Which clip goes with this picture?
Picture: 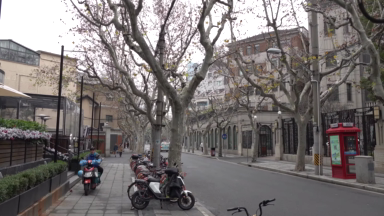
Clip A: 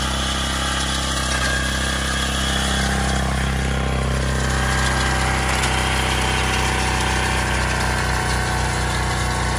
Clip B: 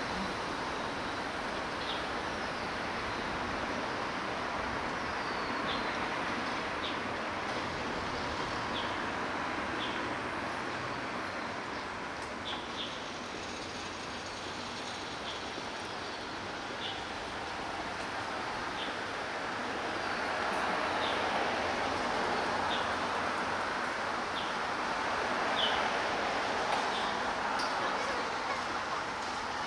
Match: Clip B